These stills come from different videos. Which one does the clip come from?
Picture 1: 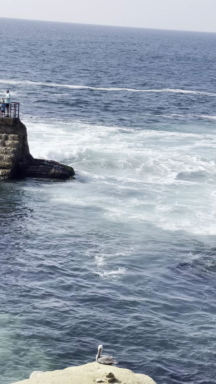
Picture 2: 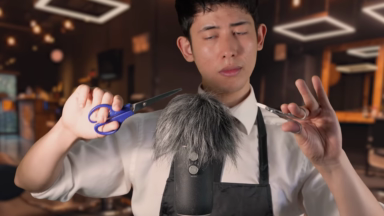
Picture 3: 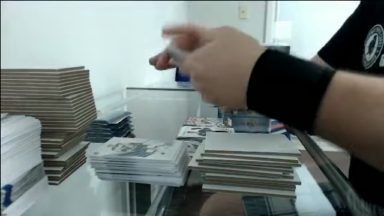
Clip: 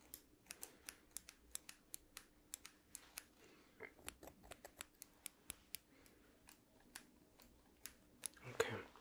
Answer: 2